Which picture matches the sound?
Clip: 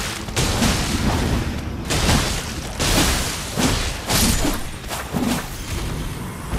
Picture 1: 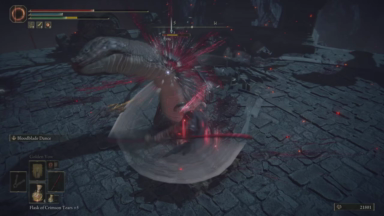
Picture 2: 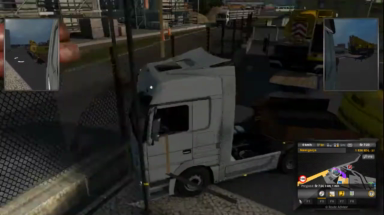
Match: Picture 1